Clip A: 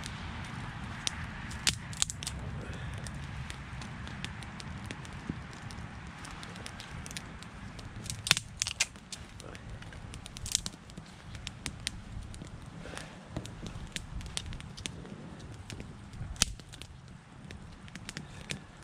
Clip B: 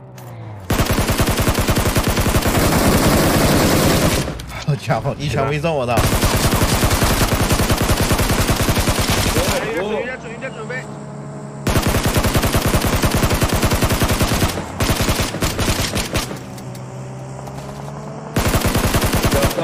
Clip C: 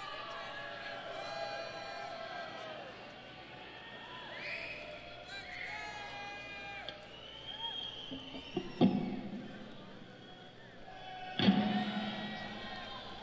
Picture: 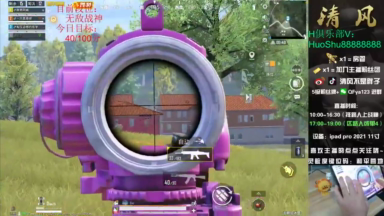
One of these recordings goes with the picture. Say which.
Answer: B